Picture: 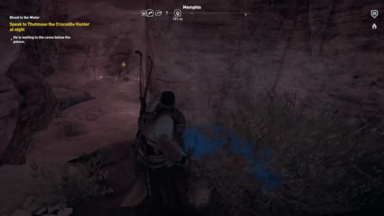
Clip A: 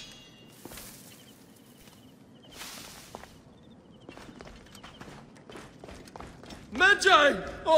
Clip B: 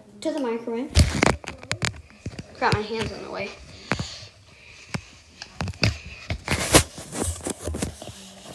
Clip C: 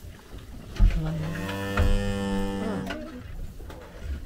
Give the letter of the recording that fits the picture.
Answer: A